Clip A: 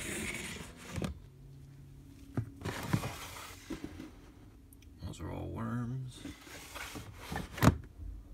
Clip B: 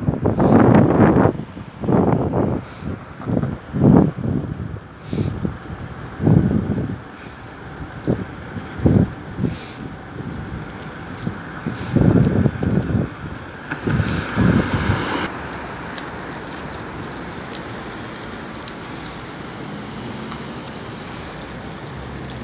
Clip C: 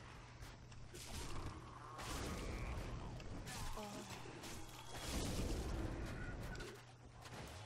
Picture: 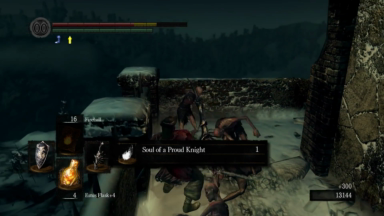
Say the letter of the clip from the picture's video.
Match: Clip C